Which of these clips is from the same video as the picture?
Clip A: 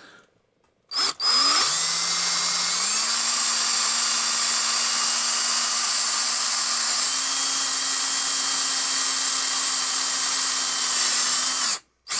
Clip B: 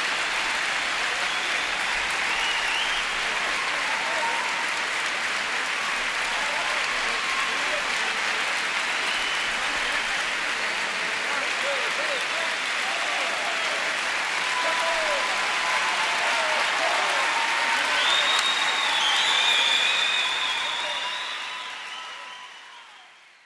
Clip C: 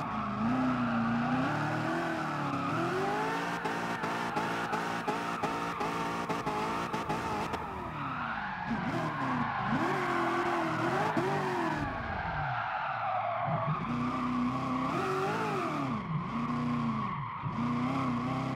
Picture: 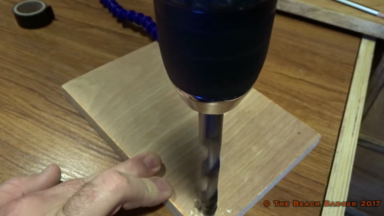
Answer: A